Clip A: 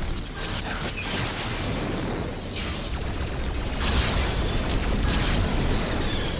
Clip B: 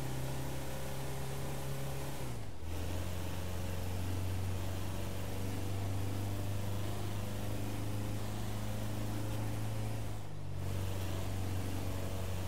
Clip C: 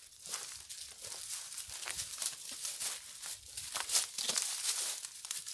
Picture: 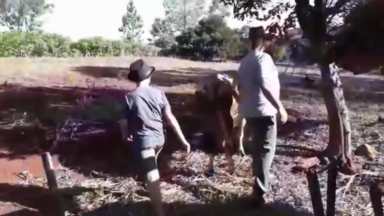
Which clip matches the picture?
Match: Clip C